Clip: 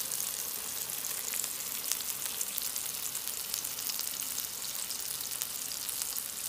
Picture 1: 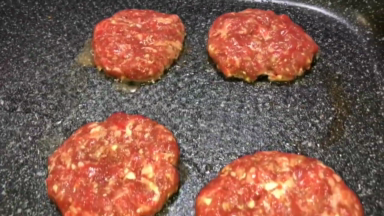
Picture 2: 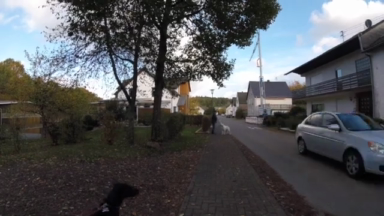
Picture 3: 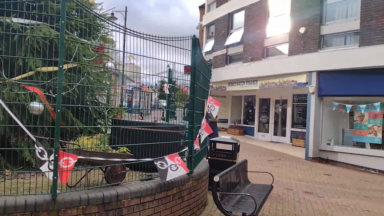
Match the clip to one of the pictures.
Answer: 1